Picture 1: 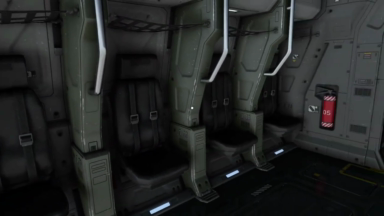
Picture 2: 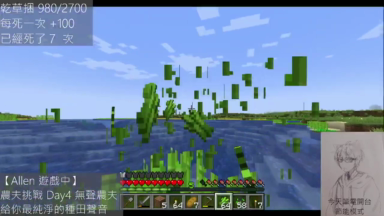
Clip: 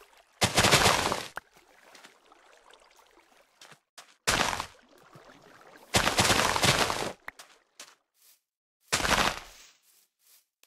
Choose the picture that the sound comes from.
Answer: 2